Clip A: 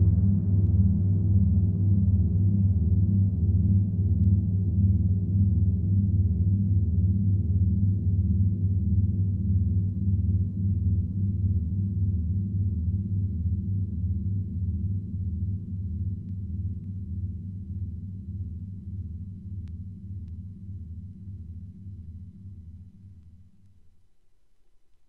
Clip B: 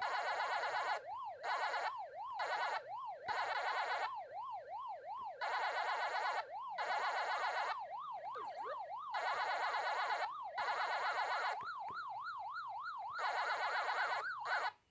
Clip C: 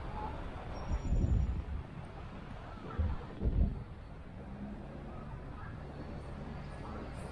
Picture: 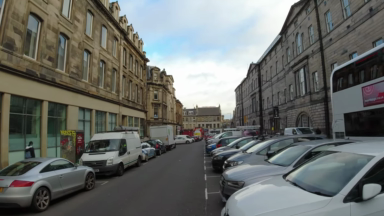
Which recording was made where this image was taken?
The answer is C